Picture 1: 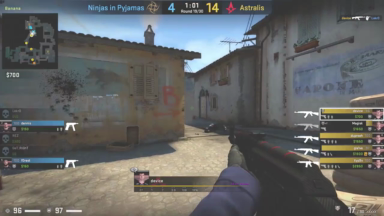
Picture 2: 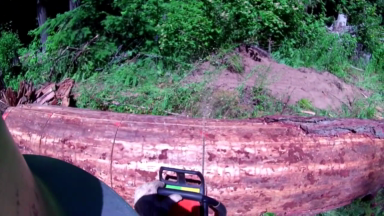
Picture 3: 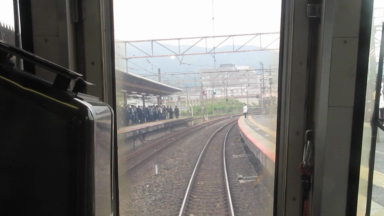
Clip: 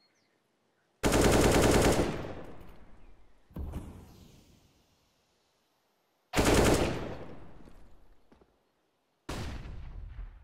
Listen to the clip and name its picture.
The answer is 1